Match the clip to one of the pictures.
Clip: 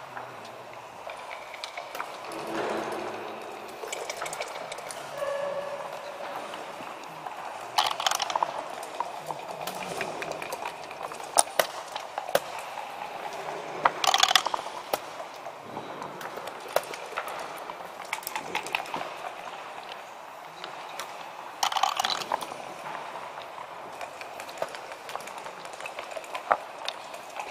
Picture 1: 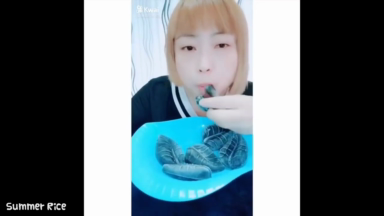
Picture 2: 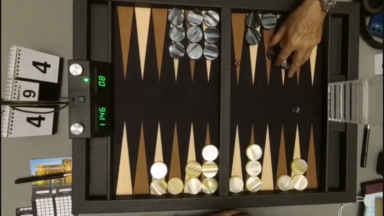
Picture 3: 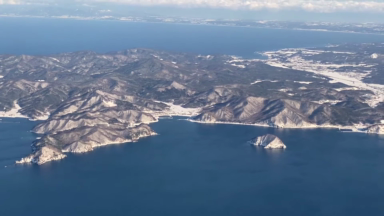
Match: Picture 2